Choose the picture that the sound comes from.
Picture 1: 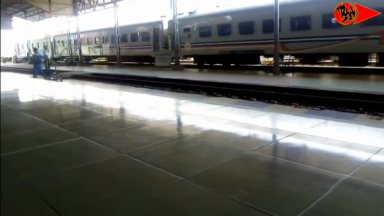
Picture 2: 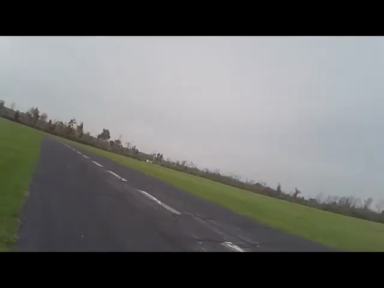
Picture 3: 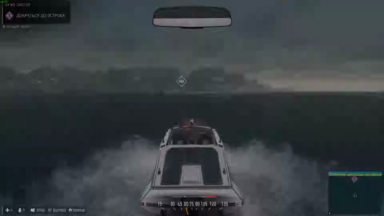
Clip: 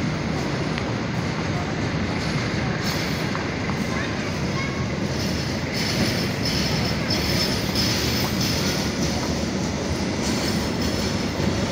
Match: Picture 1